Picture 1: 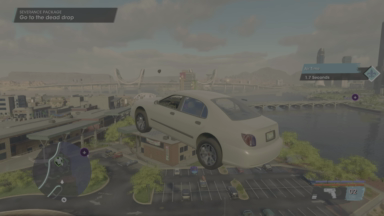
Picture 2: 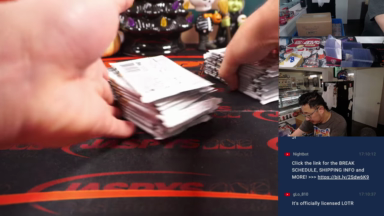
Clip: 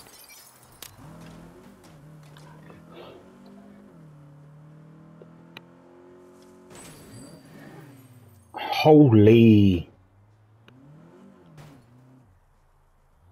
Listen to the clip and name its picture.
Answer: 1